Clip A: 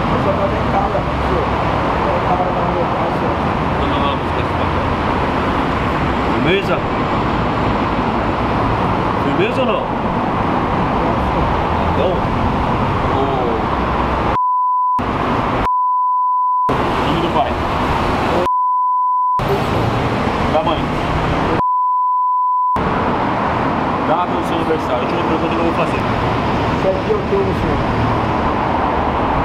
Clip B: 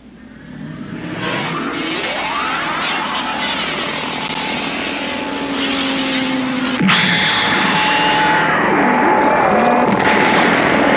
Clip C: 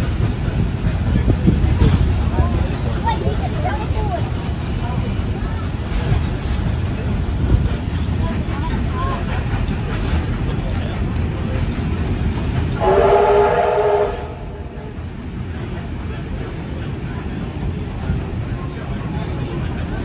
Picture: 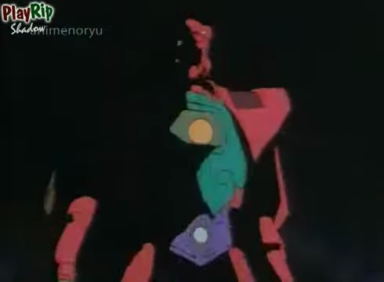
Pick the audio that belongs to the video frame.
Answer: B